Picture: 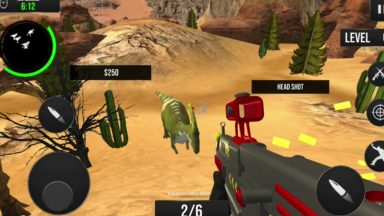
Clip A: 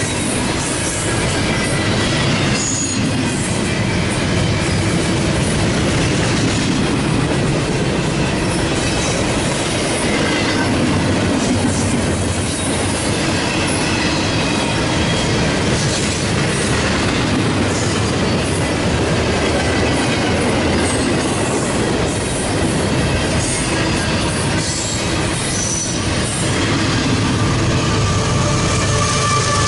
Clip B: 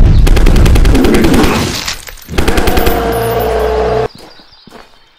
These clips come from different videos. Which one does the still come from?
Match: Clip B